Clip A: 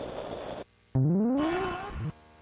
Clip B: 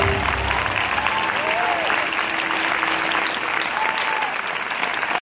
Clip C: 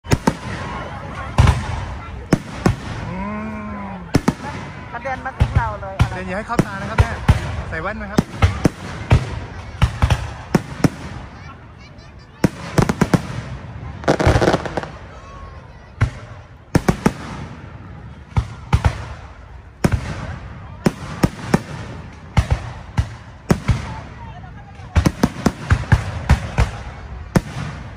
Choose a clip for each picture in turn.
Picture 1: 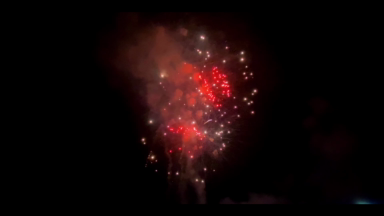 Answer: C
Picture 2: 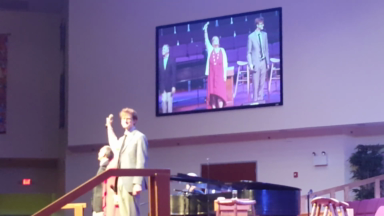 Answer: B